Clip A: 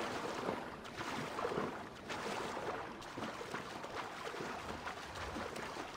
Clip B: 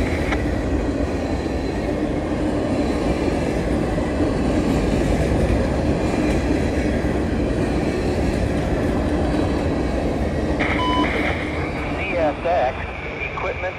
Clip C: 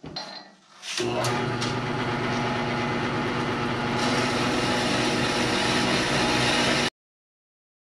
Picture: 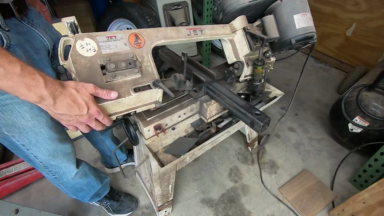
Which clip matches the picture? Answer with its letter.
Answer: C